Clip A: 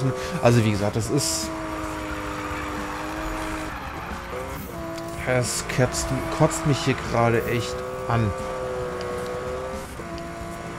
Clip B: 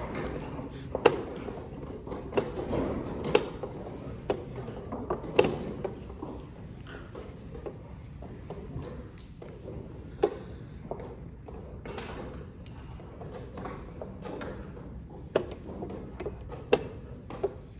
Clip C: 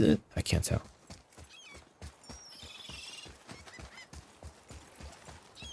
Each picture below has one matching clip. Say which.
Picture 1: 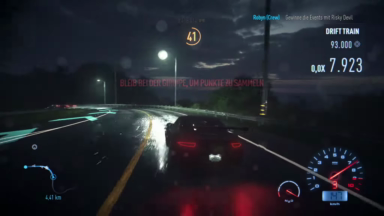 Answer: A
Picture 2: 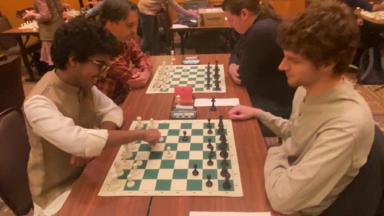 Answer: B